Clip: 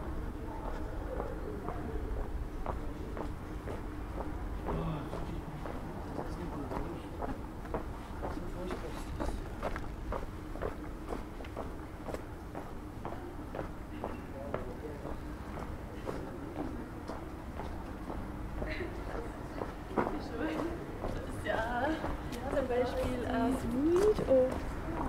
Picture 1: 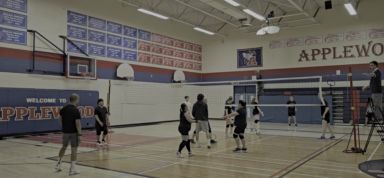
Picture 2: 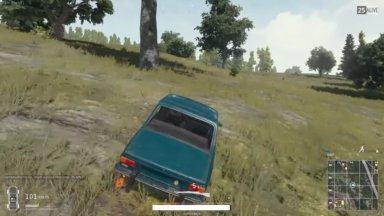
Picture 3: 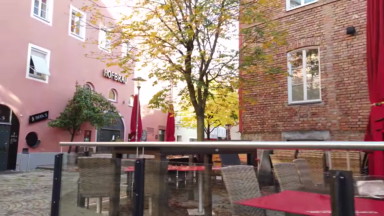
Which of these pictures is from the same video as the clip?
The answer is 3